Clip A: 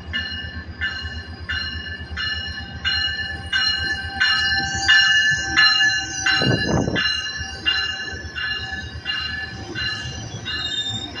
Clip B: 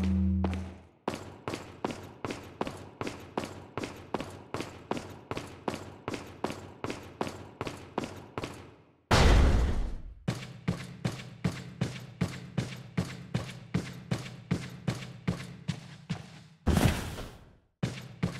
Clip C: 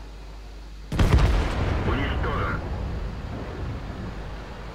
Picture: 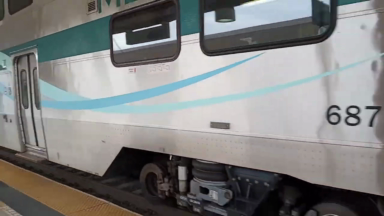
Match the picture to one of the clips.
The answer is A